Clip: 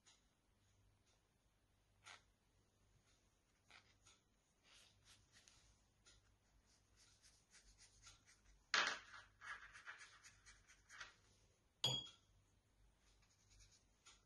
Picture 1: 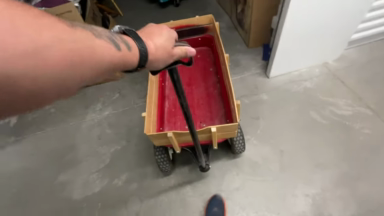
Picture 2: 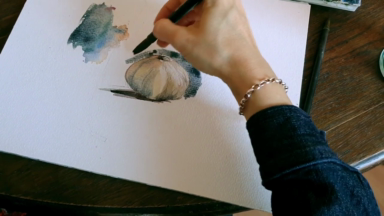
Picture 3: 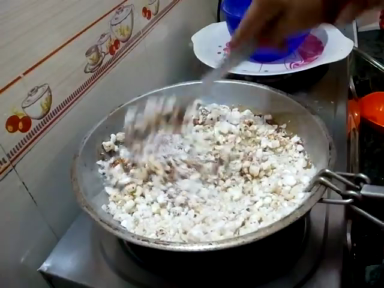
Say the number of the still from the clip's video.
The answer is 2